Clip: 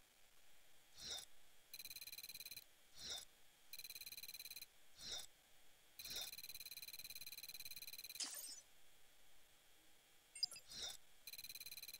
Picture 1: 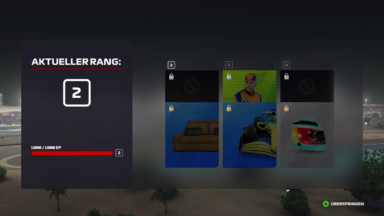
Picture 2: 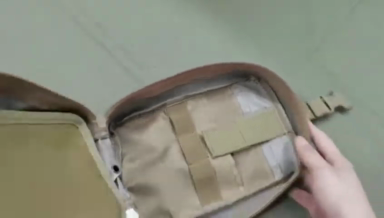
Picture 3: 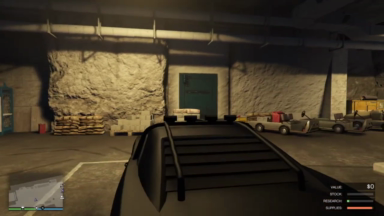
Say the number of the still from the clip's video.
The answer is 1